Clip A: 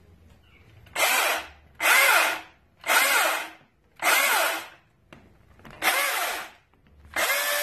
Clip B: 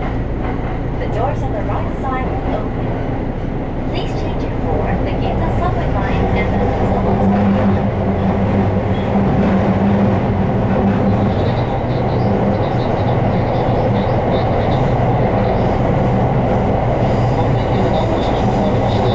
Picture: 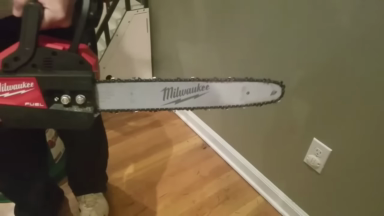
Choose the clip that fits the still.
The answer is A